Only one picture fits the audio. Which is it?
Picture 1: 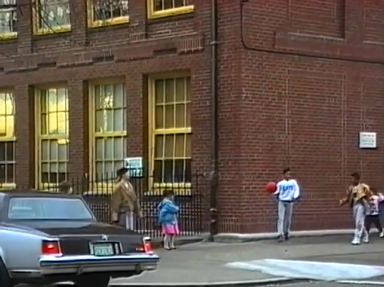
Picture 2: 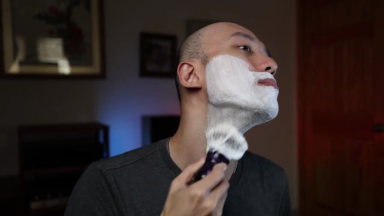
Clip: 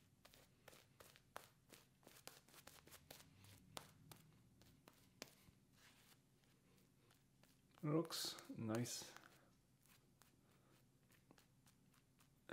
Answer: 2